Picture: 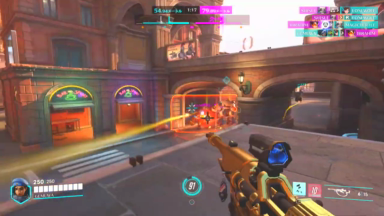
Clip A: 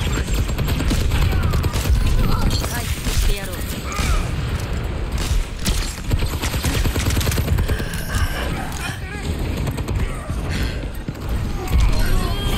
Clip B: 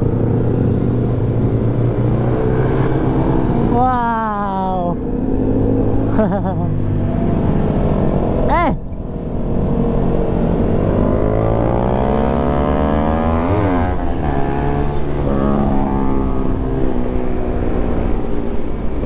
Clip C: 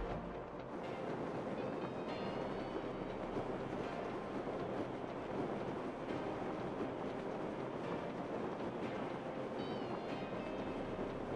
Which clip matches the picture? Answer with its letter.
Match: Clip A